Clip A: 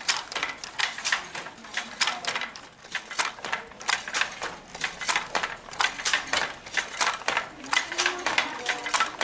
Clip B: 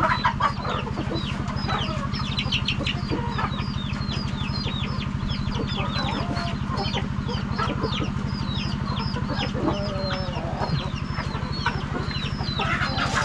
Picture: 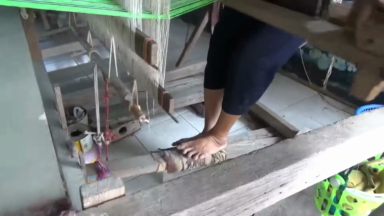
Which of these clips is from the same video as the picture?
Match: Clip A